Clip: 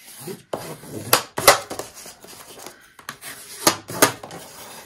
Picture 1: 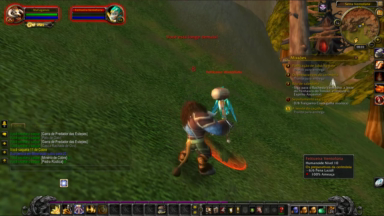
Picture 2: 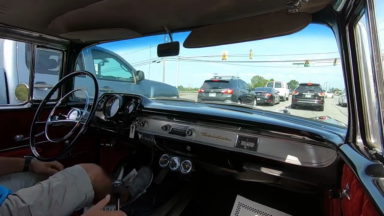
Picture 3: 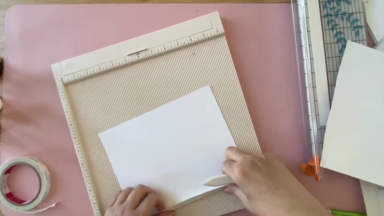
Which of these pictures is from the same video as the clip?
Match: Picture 3